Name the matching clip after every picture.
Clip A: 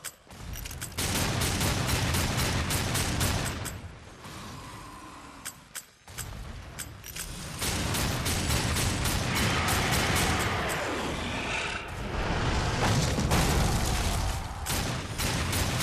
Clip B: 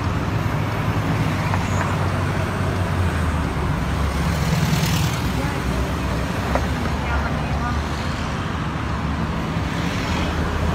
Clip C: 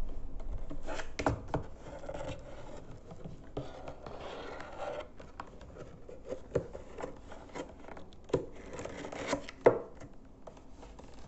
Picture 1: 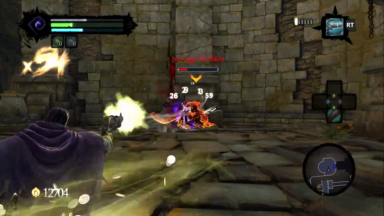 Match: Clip A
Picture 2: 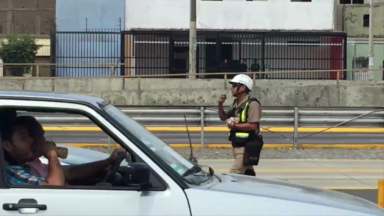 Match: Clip B